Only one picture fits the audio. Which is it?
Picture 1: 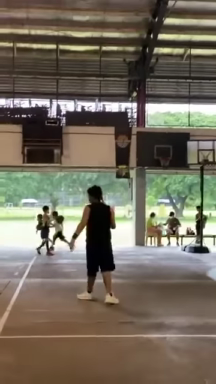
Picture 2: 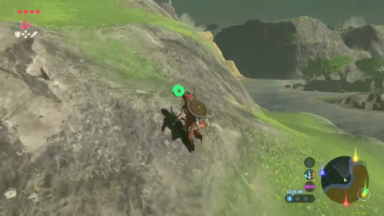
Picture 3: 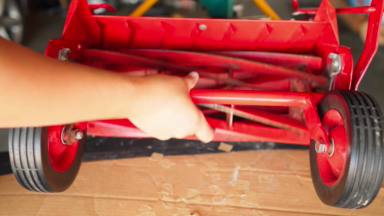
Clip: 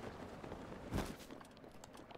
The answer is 2